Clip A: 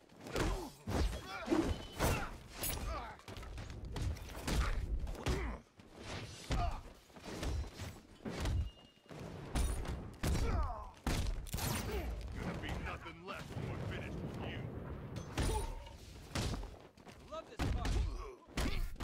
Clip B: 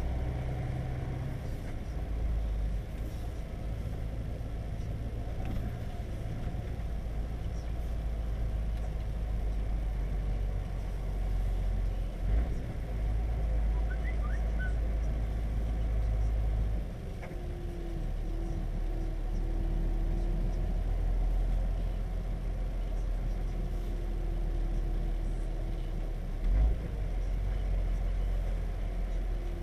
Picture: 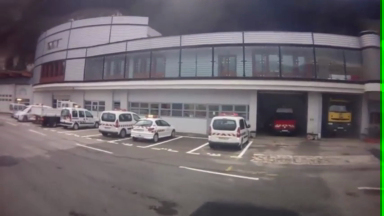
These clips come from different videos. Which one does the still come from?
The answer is B